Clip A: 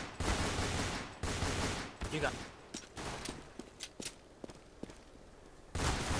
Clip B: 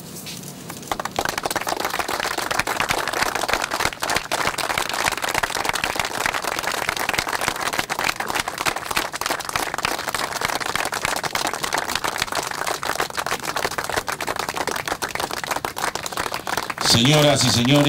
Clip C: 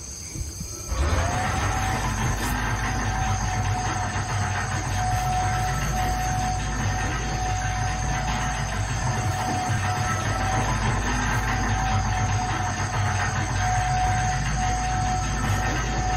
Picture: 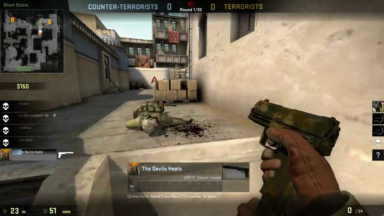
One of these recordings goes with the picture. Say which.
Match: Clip A